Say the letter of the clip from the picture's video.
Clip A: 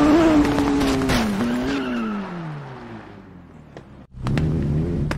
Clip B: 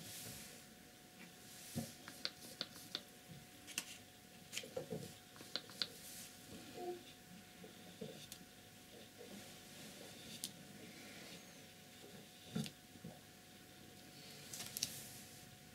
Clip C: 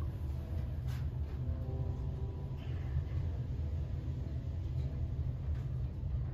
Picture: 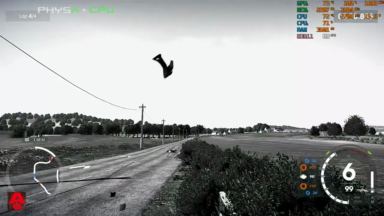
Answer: A